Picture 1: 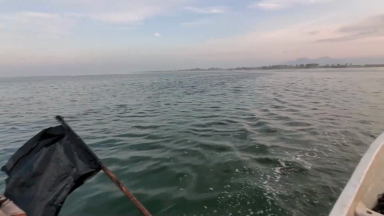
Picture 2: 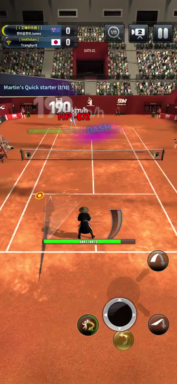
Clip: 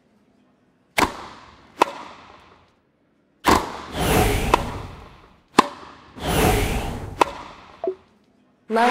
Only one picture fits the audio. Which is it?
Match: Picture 2